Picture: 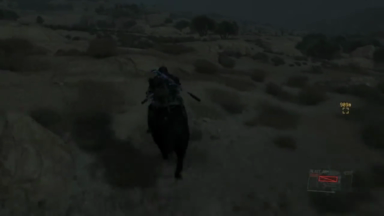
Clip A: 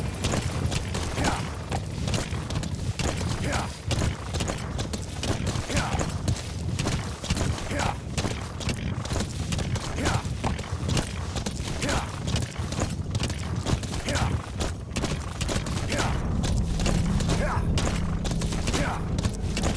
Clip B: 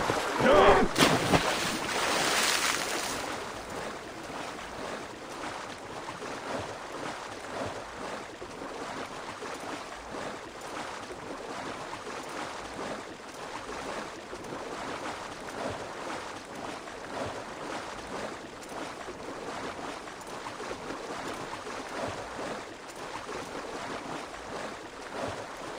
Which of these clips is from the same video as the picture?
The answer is A